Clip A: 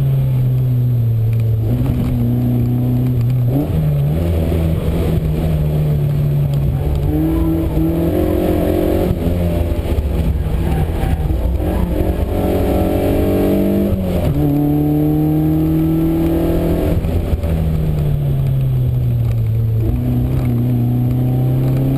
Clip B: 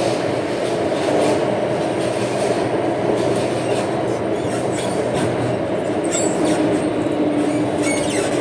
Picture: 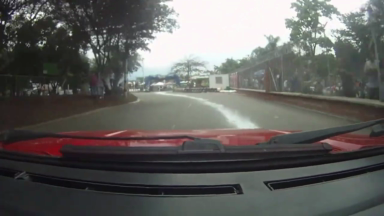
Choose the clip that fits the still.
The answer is A